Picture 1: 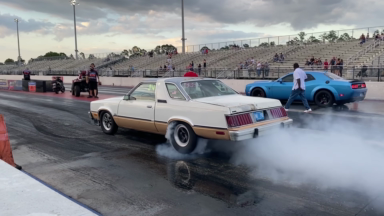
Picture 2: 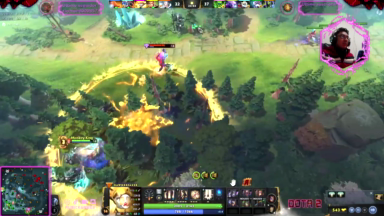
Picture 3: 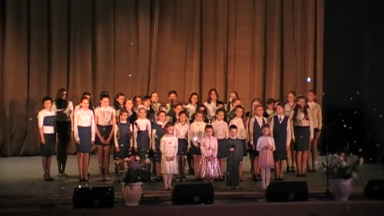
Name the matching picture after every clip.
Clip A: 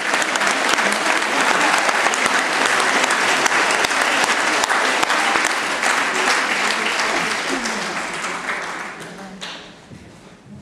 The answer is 3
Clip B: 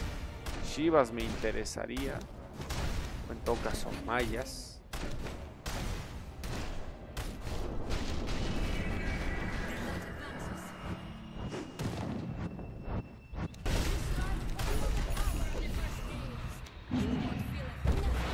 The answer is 2